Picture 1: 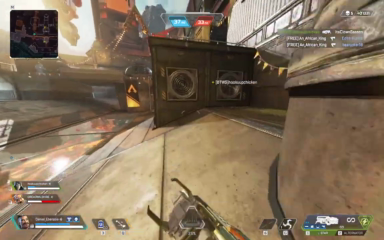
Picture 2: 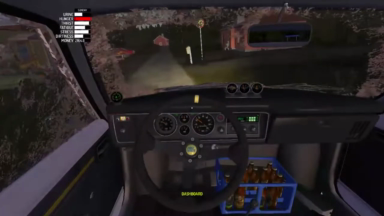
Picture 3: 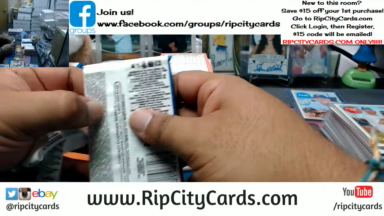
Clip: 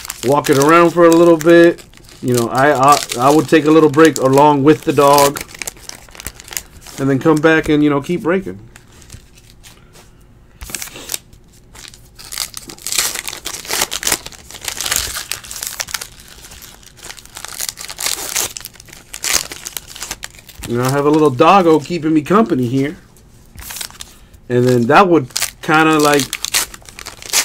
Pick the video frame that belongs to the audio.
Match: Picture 3